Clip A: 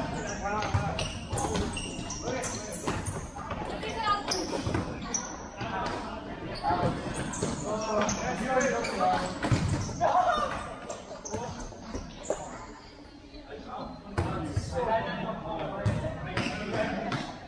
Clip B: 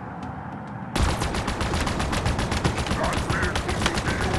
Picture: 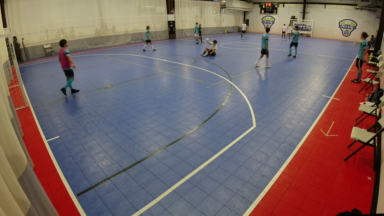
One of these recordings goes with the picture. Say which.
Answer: A